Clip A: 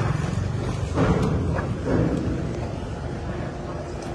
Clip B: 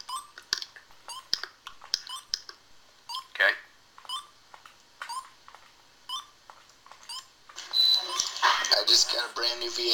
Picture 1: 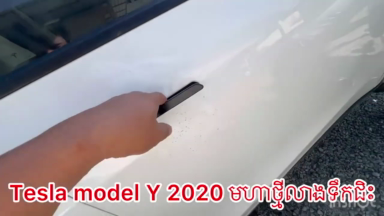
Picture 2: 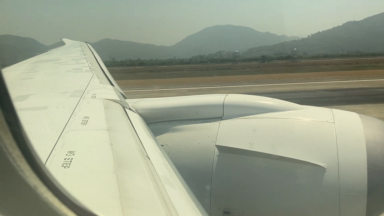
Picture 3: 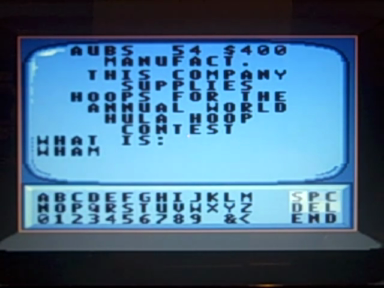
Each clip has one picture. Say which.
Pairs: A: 1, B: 3